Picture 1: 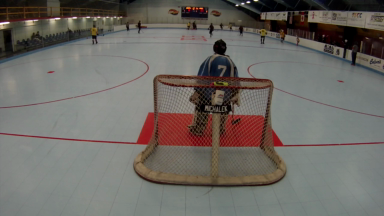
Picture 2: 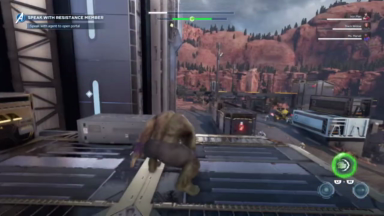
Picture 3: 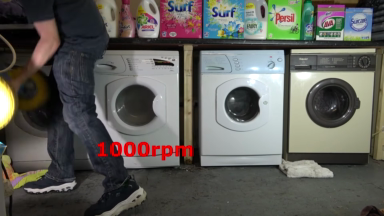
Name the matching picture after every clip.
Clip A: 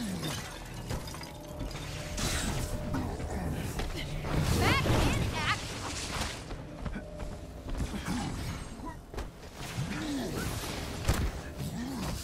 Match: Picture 2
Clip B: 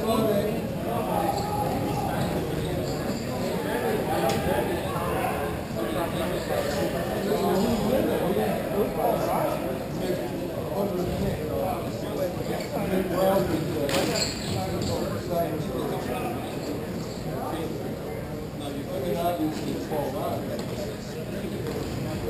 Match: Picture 1